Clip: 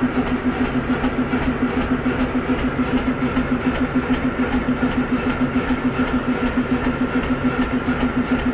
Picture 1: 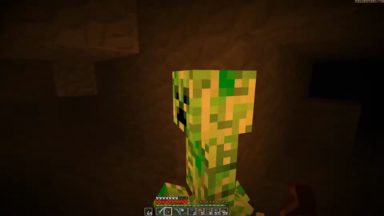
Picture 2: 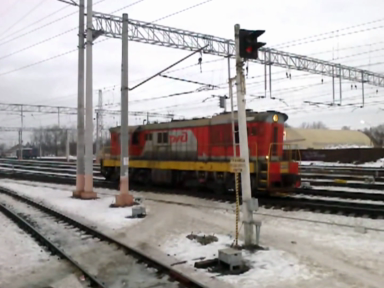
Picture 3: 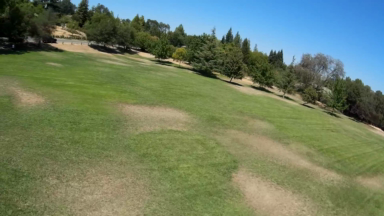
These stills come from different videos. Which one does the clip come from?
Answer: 2